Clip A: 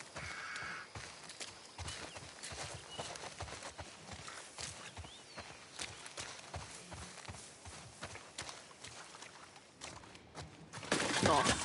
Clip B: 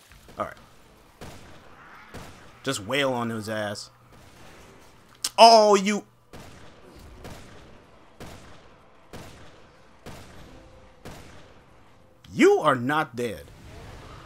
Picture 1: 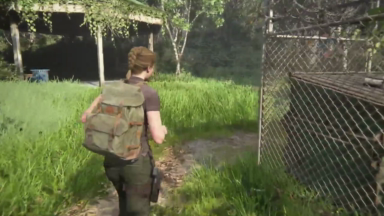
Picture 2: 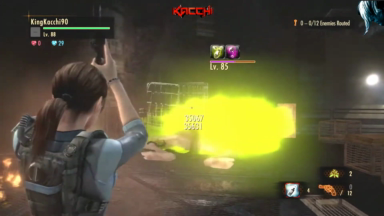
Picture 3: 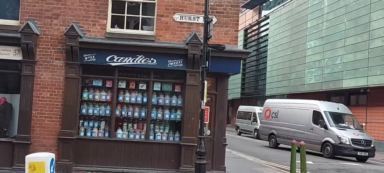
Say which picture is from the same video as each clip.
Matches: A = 1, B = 2